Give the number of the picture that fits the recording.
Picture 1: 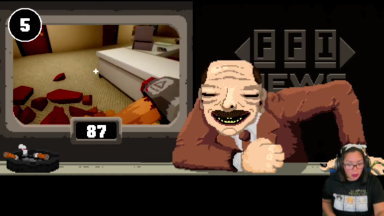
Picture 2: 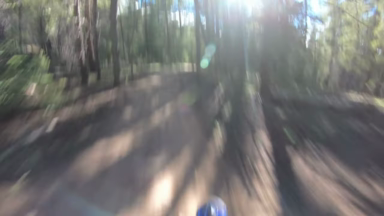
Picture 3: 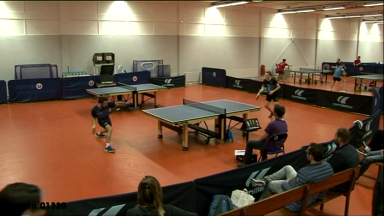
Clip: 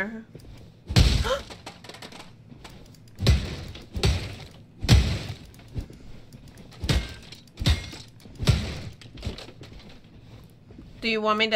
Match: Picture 1